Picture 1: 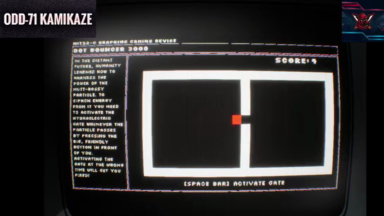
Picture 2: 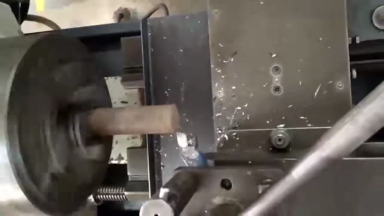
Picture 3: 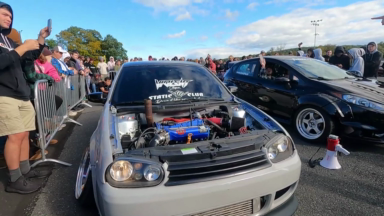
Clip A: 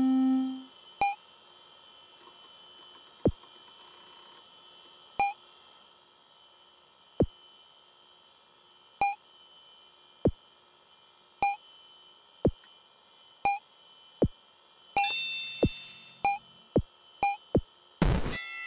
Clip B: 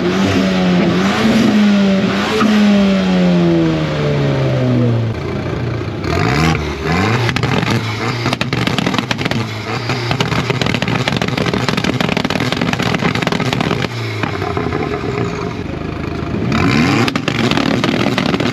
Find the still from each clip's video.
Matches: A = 1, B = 3